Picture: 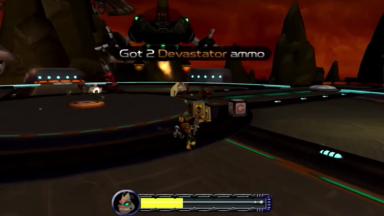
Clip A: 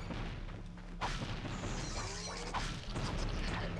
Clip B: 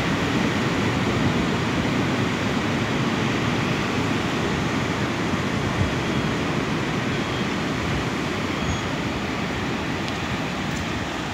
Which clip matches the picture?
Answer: A